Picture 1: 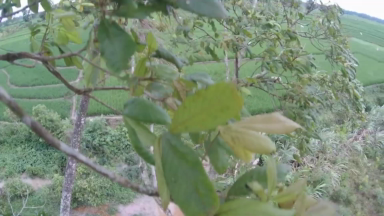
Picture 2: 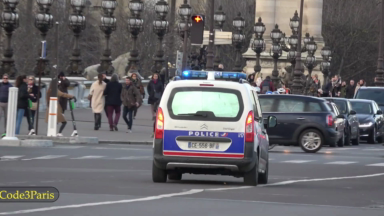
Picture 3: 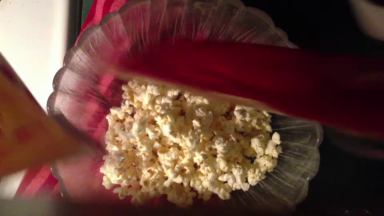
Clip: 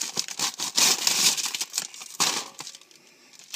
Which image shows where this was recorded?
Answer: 3